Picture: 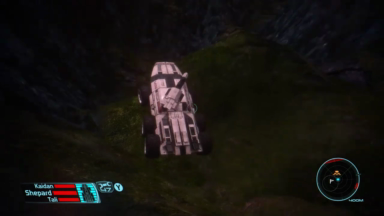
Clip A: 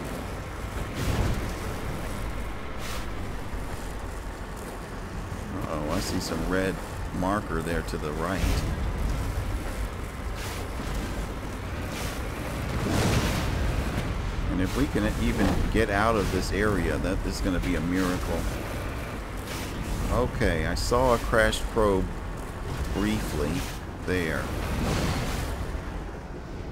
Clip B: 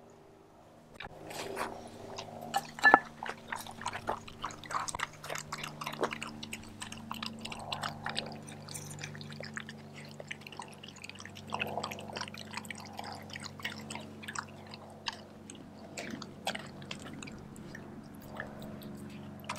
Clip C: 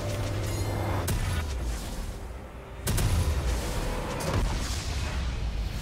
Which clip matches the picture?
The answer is A